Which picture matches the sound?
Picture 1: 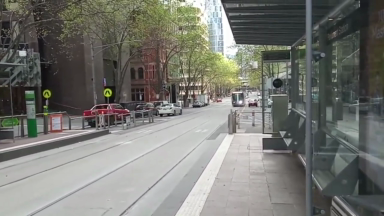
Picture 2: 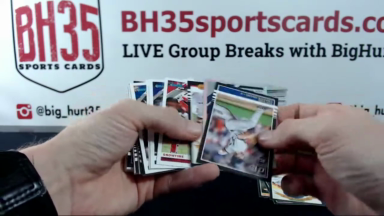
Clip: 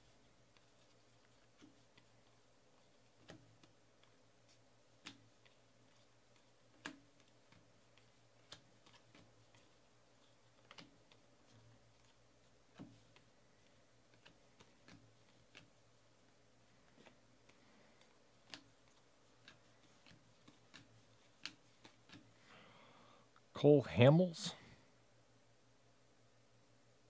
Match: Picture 2